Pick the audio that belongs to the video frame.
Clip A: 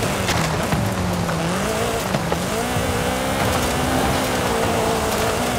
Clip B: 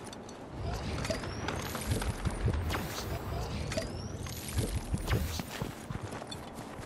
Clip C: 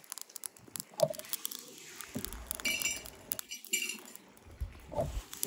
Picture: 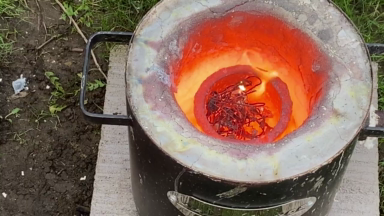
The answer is C